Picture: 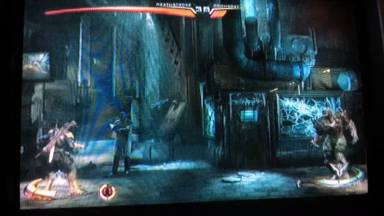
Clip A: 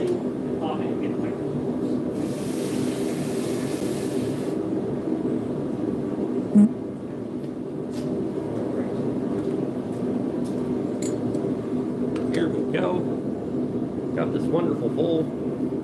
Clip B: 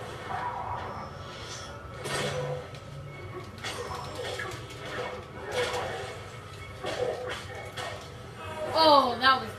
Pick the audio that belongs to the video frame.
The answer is B